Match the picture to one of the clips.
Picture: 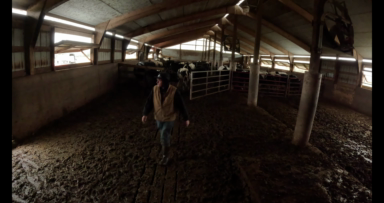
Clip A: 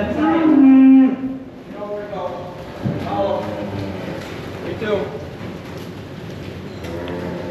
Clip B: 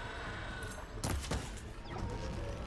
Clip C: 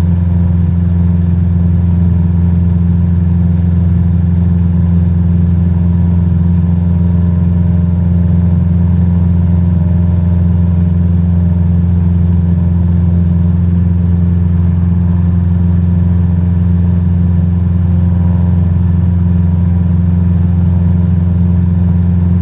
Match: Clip A